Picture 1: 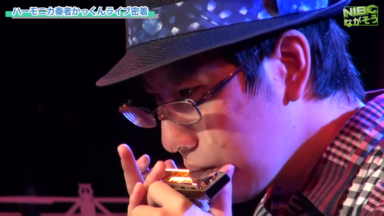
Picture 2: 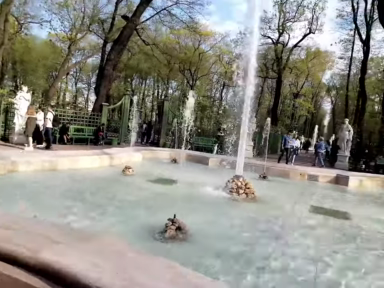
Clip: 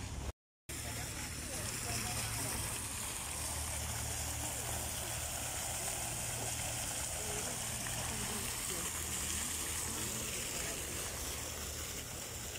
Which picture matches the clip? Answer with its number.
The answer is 2